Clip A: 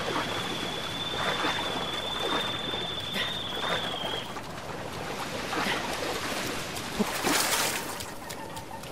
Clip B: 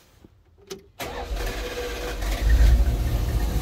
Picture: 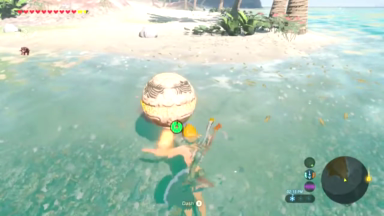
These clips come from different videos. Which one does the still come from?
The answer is A